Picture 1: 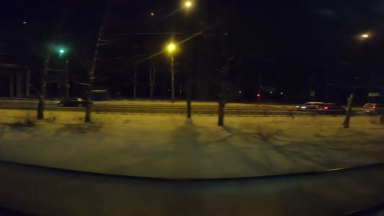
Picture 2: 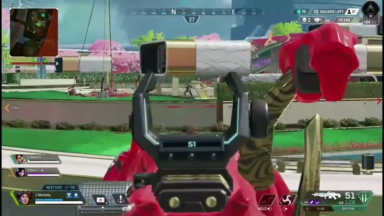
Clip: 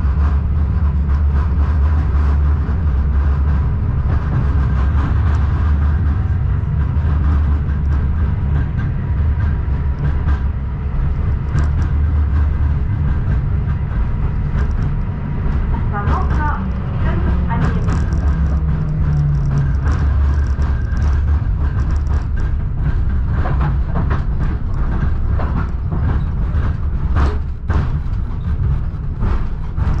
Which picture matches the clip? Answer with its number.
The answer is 1